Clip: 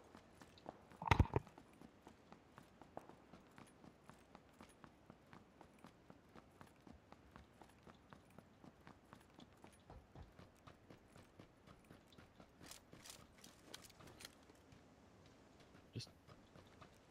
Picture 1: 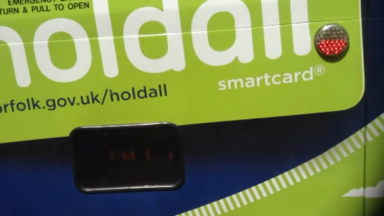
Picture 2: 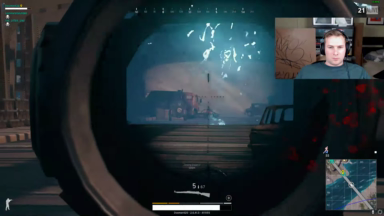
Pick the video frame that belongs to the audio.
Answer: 2